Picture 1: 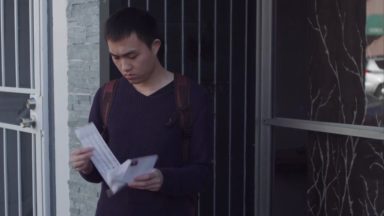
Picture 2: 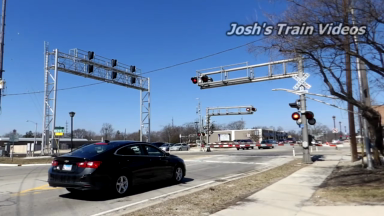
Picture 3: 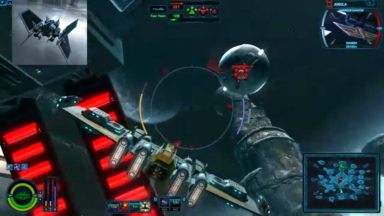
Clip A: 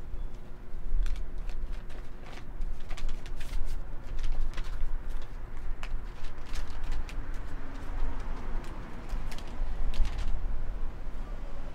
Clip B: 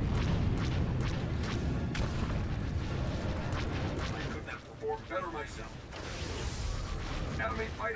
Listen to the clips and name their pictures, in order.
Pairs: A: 1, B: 3